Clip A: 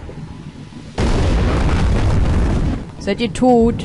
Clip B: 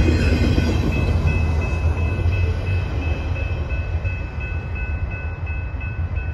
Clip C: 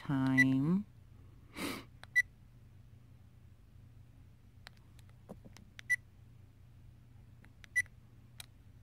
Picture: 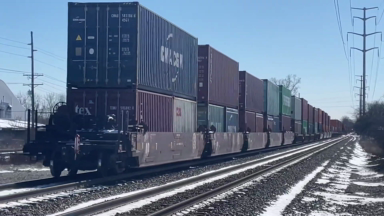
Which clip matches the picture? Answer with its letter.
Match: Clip B